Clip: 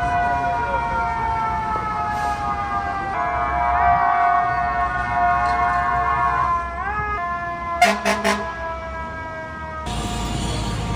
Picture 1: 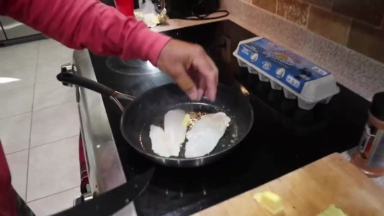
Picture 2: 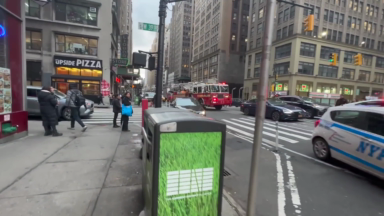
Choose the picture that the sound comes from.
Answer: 2